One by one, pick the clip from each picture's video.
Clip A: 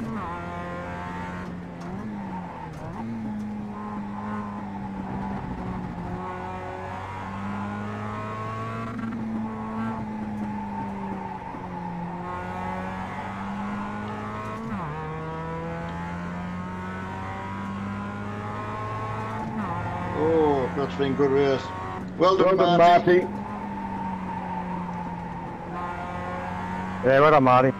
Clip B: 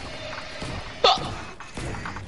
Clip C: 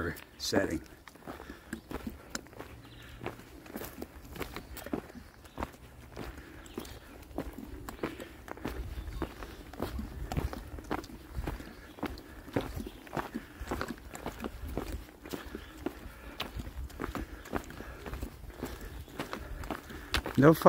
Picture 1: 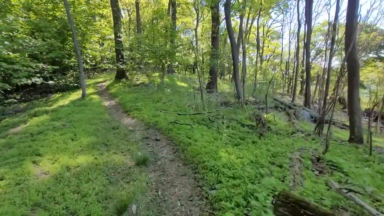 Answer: C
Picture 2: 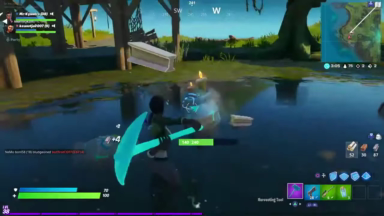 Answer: B